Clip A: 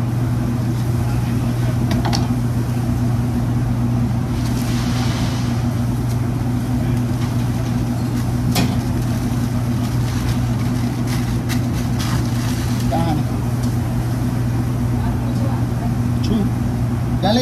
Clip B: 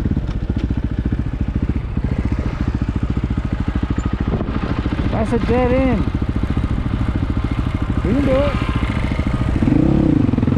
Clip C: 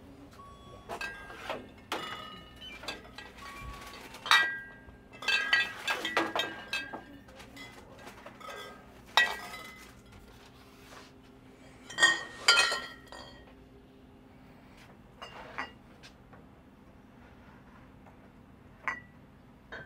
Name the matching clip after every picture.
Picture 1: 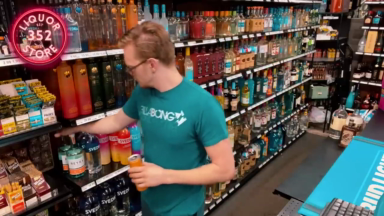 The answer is C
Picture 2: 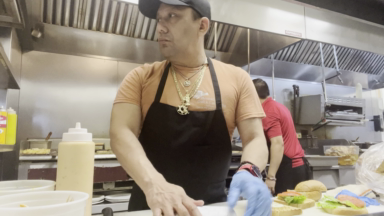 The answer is A